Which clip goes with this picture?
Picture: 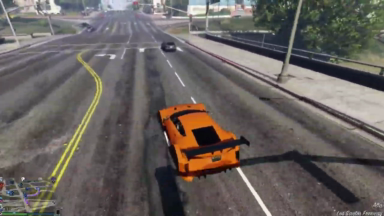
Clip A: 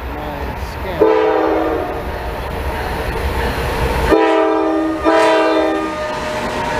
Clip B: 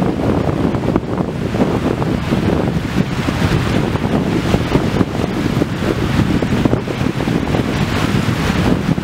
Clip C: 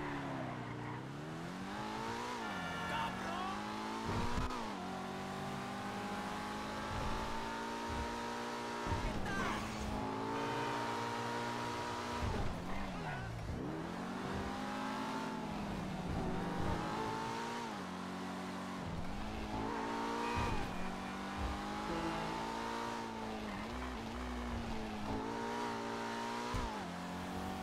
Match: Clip C